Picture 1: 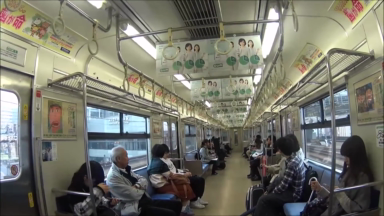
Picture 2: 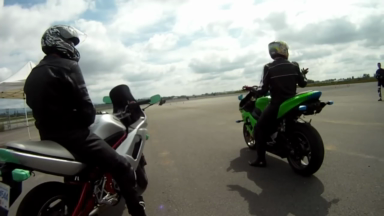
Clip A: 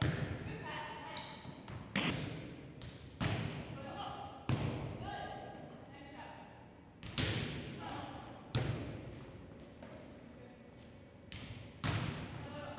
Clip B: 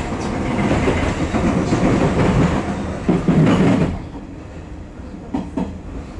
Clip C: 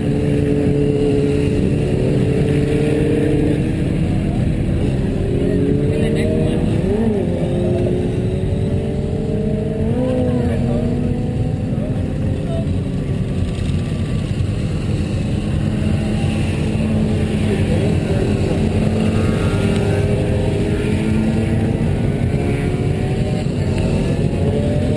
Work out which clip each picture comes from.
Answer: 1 B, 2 C